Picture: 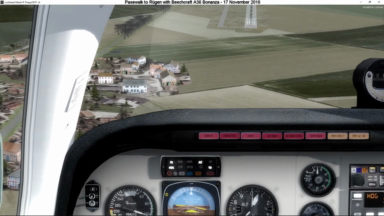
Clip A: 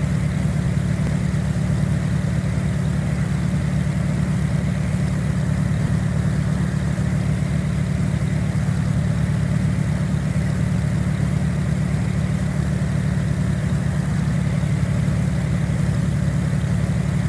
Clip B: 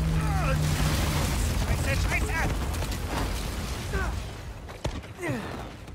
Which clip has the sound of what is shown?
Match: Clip A